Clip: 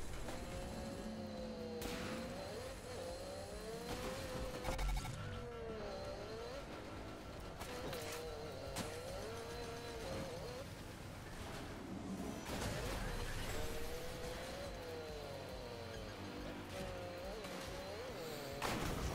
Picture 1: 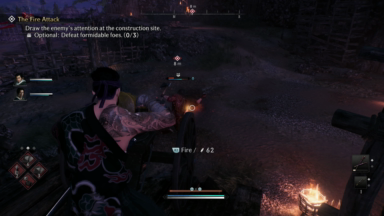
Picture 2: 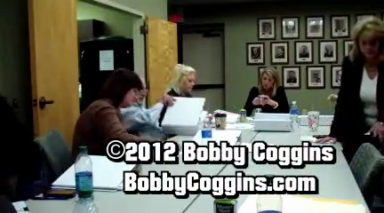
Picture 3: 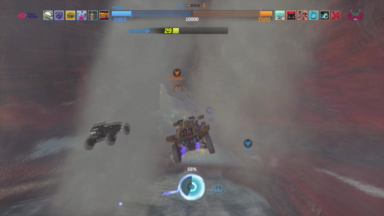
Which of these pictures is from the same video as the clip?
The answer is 3